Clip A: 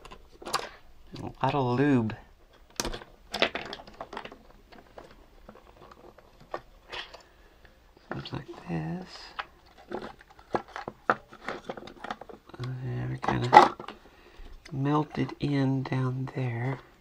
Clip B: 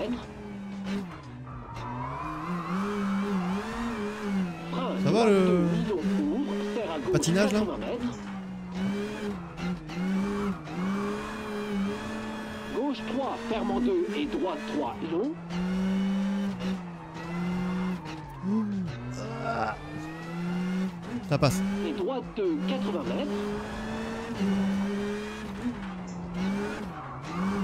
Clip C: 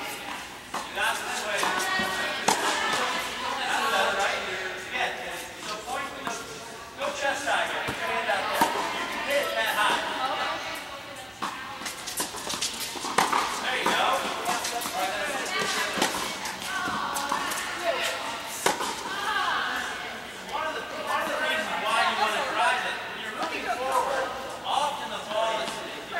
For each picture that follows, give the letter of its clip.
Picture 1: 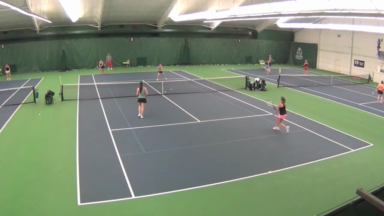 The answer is C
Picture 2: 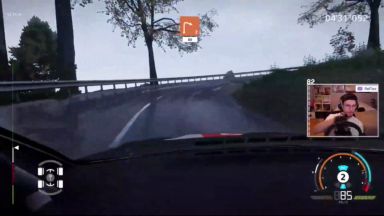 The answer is B